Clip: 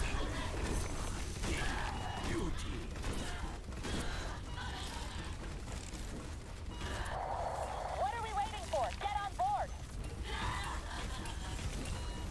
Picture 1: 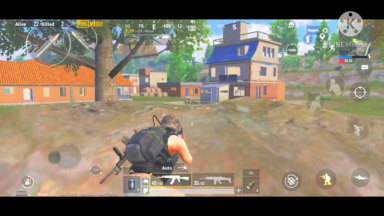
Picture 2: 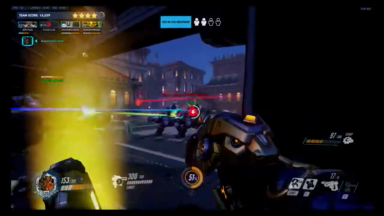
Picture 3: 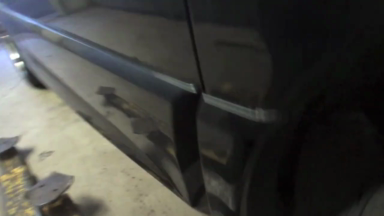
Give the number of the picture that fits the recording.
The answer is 2